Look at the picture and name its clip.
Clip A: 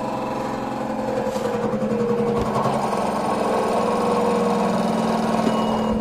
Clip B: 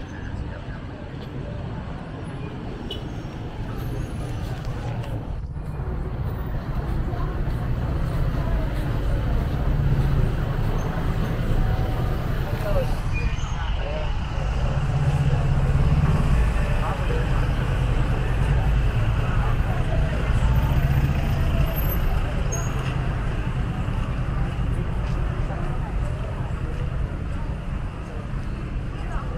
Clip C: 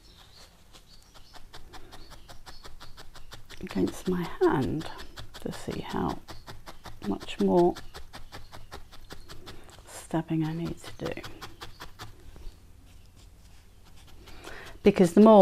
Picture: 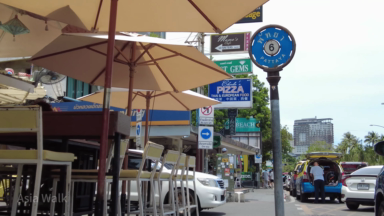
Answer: B